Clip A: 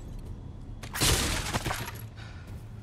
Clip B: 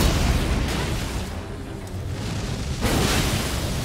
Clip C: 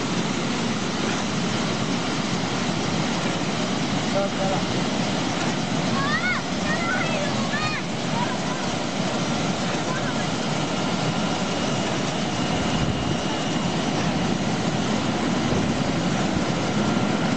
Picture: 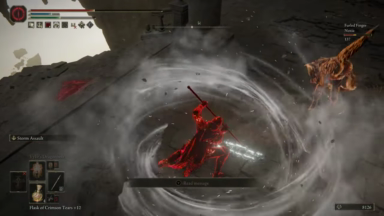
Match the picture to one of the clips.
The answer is B